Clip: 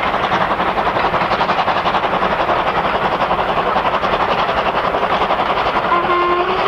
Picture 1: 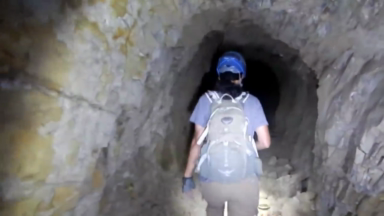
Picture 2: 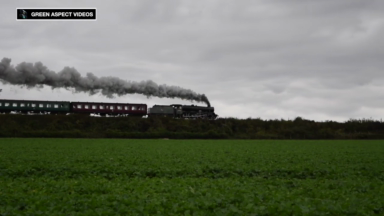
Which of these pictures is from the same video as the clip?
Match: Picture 2